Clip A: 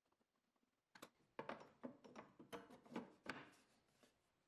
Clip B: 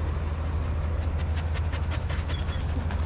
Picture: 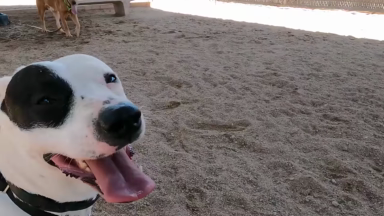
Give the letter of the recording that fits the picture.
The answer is B